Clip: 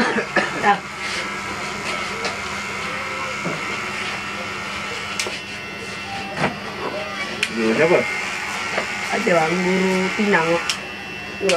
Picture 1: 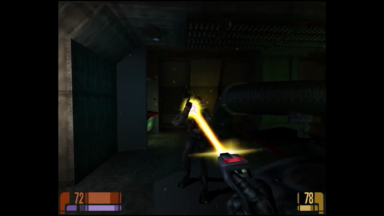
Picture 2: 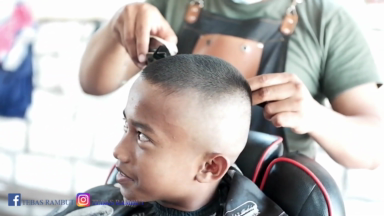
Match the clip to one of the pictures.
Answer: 2